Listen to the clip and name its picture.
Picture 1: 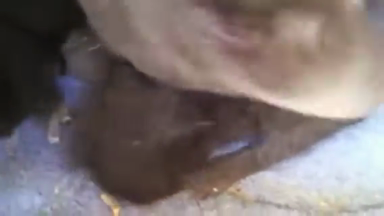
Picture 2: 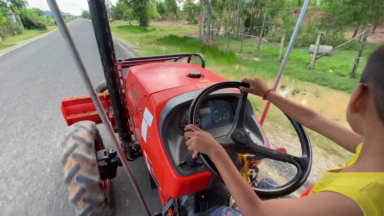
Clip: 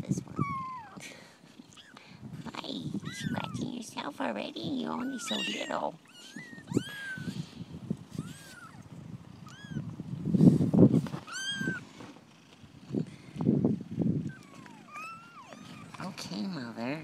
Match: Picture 1